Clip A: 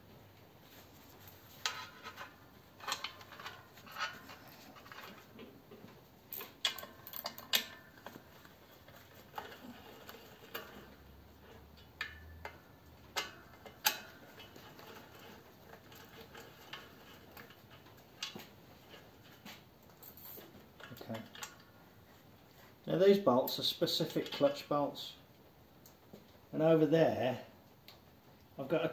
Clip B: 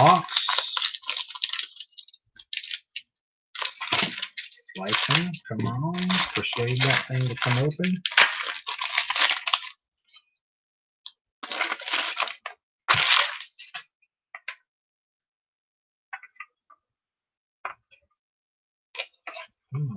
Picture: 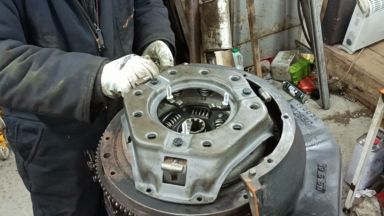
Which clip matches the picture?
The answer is A